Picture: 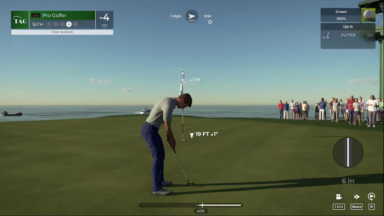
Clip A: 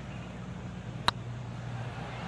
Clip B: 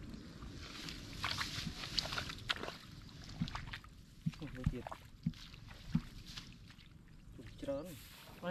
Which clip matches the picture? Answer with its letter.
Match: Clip A